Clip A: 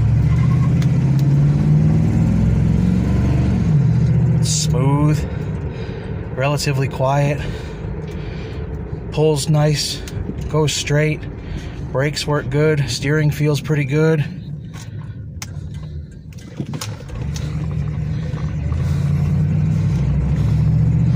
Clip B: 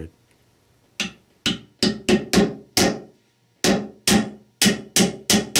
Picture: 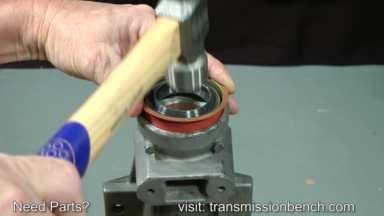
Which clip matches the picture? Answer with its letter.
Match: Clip B